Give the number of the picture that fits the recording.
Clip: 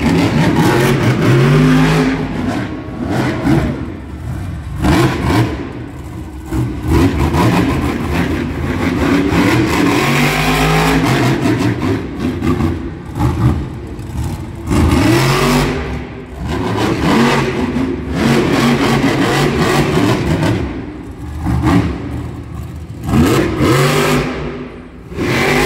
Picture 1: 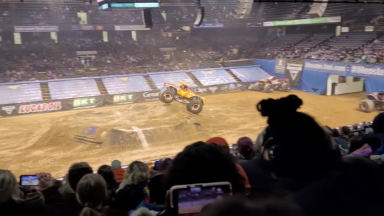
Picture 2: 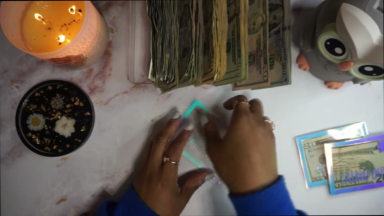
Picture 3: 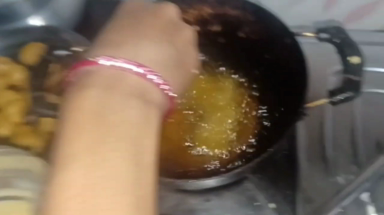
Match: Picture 1